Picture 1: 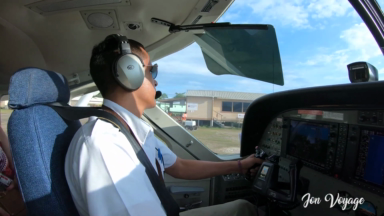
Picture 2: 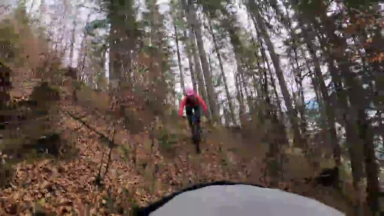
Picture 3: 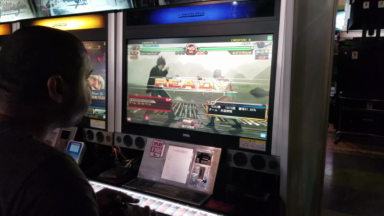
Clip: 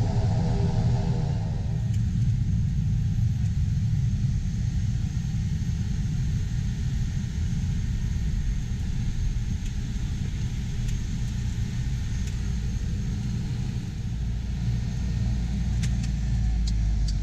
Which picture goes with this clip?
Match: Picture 1